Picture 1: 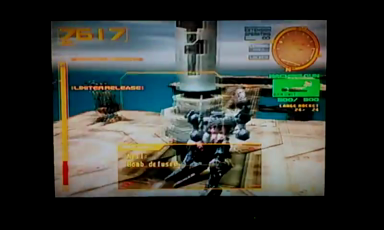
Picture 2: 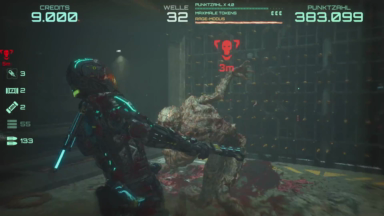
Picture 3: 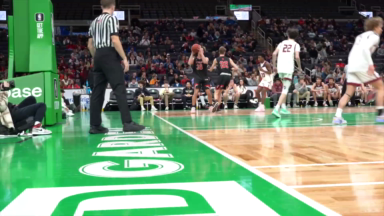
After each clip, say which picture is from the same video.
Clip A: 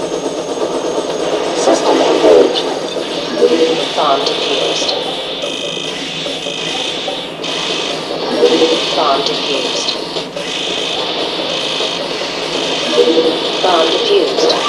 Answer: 1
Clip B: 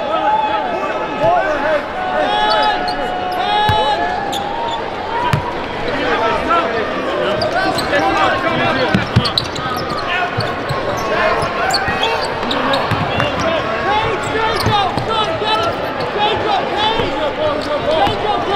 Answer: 3